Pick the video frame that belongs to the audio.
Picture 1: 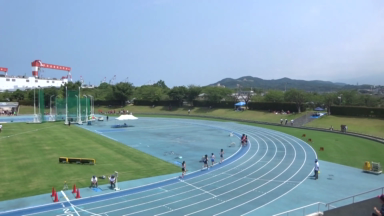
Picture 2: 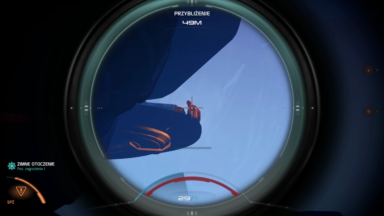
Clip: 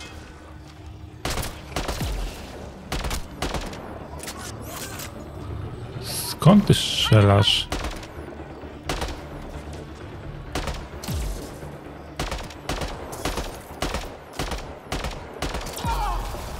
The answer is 2